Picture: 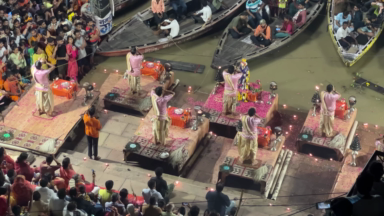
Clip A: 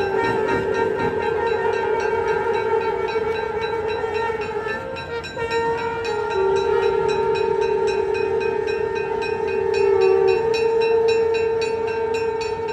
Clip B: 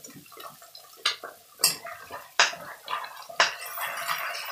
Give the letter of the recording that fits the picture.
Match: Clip A